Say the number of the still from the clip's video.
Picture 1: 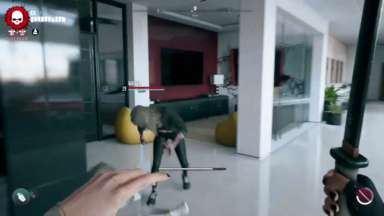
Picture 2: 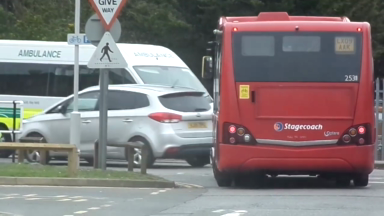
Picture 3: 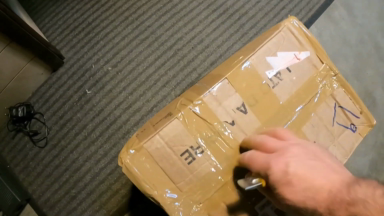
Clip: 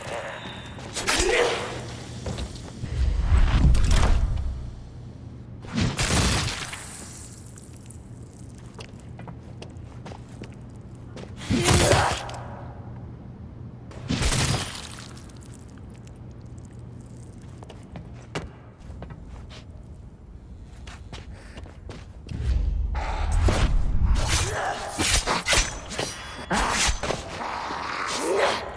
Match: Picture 1